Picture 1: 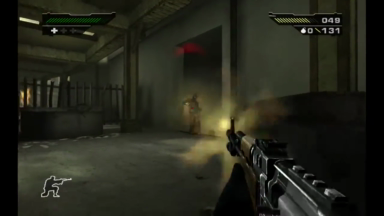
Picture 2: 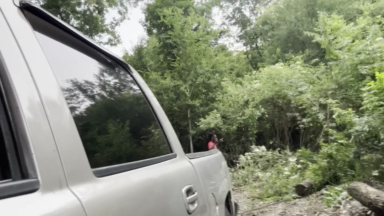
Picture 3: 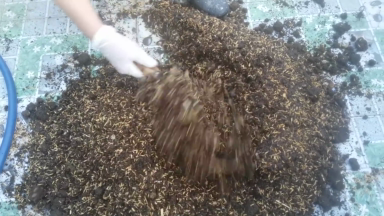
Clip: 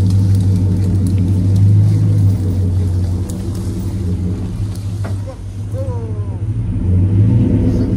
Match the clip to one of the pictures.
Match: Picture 2